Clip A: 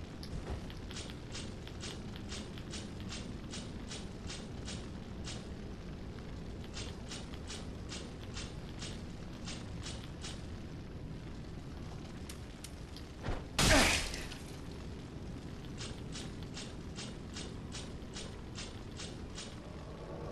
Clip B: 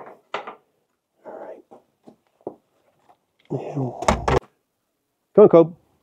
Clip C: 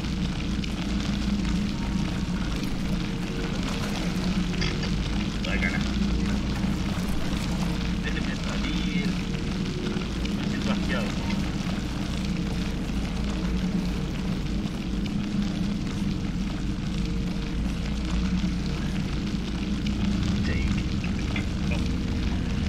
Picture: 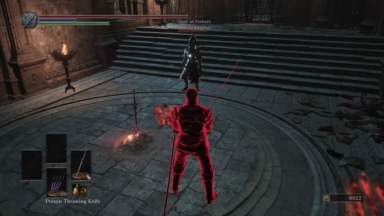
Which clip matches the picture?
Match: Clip A